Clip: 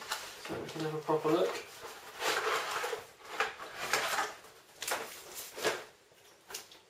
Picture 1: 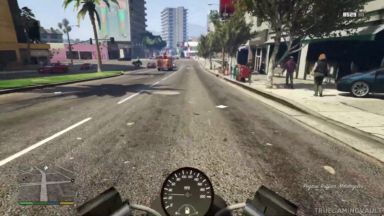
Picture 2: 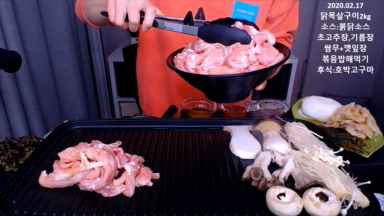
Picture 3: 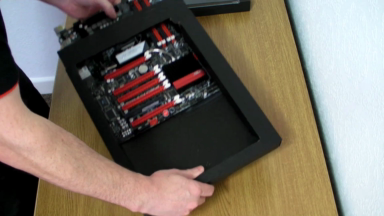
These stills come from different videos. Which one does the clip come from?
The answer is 3